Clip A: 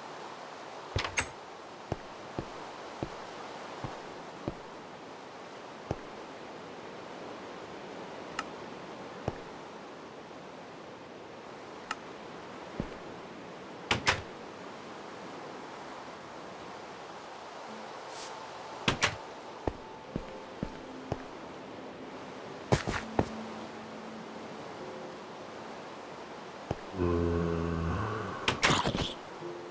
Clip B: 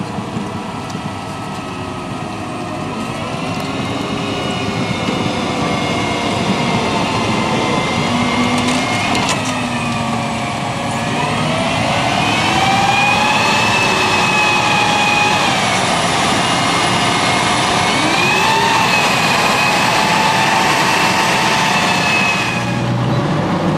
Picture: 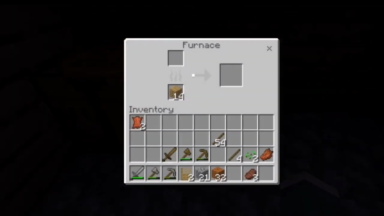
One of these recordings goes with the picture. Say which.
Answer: A